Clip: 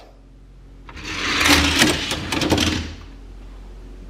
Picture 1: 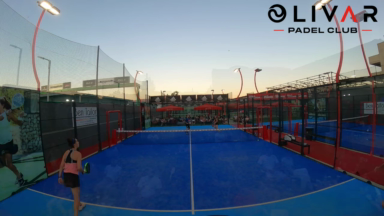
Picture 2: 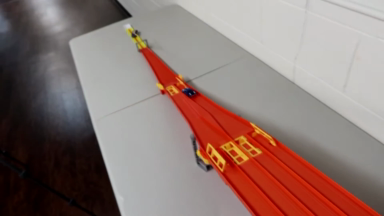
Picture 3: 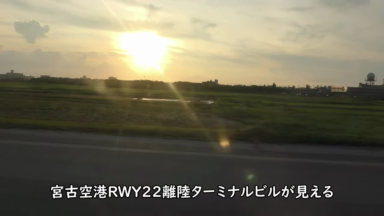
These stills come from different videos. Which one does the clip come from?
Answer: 2